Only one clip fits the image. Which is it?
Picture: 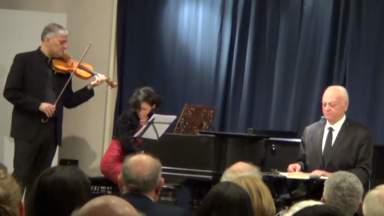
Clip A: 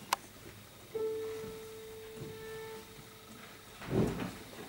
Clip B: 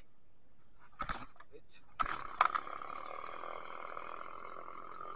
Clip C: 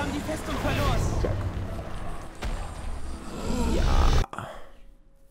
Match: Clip A